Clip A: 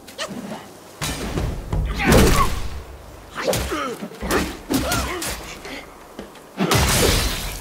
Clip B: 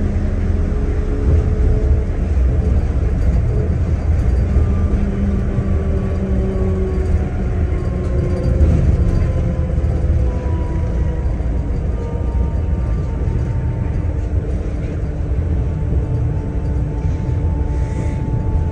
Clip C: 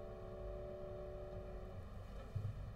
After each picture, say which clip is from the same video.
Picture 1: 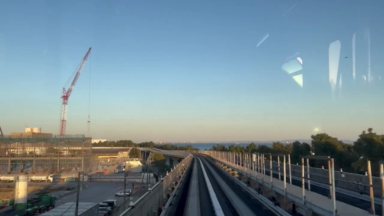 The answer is B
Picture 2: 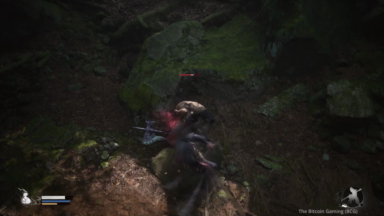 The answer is A